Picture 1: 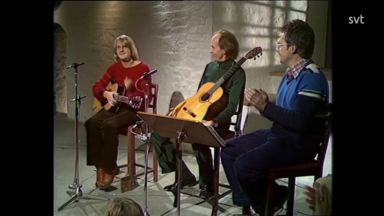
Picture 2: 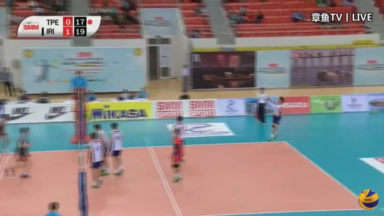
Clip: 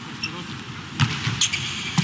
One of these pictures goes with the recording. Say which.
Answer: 2